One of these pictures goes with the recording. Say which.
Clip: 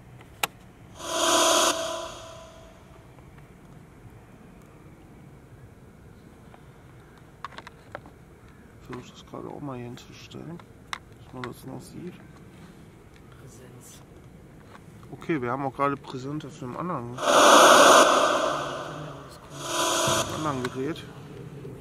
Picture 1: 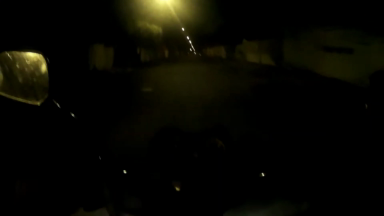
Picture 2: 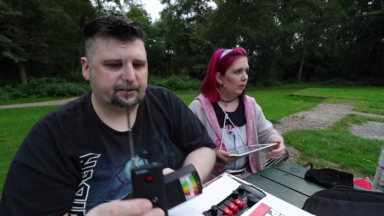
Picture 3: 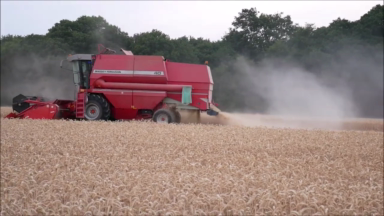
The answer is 2